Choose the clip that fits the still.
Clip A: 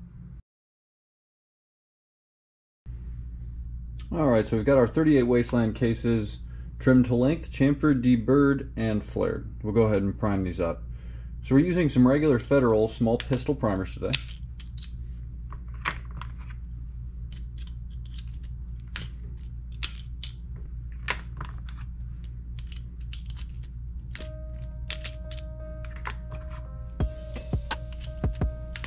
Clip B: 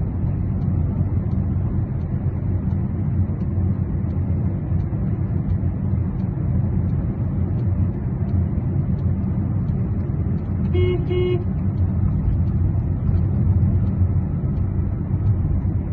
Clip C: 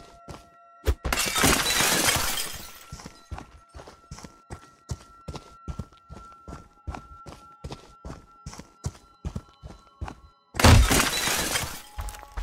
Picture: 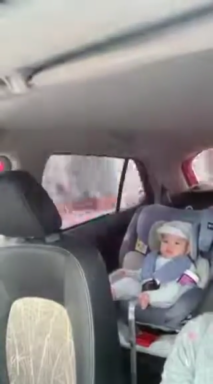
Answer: B